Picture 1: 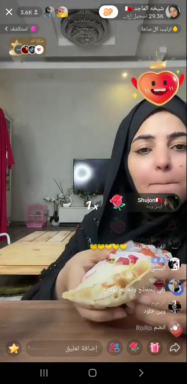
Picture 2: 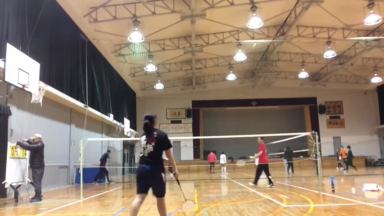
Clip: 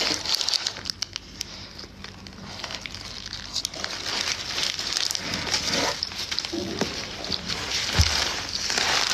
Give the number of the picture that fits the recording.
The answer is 1